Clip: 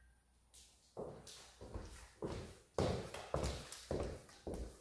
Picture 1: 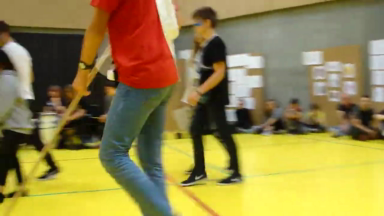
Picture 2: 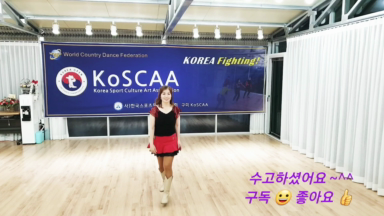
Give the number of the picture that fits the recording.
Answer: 2